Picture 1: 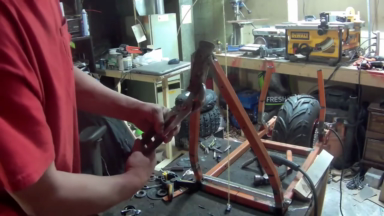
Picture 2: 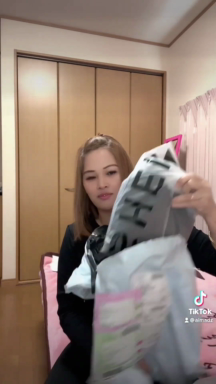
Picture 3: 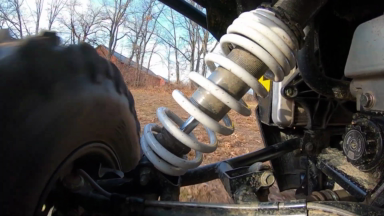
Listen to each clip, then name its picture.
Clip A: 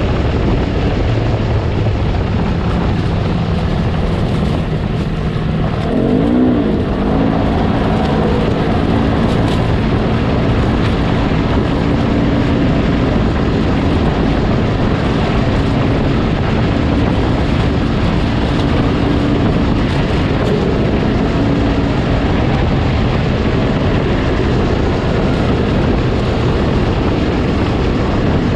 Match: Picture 3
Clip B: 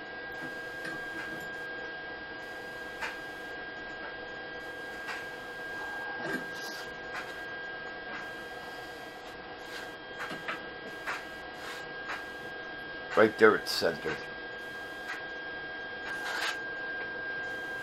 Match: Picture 1